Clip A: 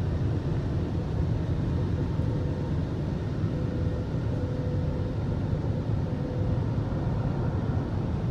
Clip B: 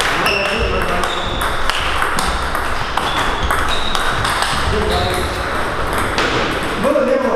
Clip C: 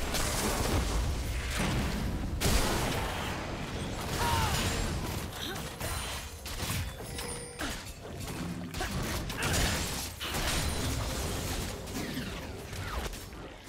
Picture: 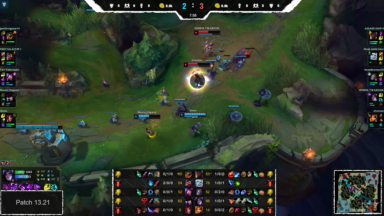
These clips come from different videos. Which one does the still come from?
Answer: C